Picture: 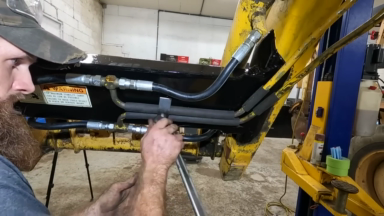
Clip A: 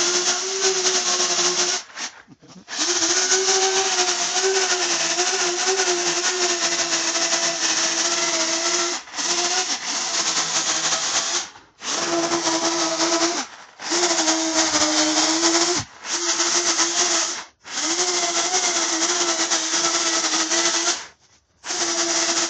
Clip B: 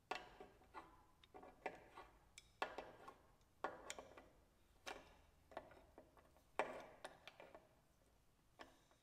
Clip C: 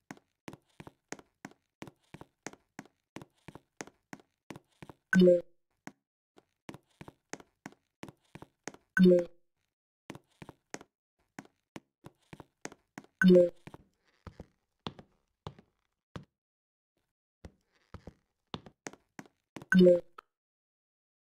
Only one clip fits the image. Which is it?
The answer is B